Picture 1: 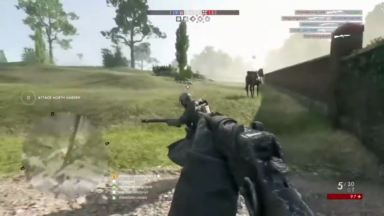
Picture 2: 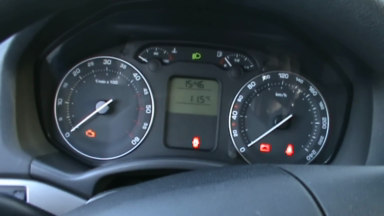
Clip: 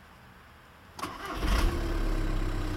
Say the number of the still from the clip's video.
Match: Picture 2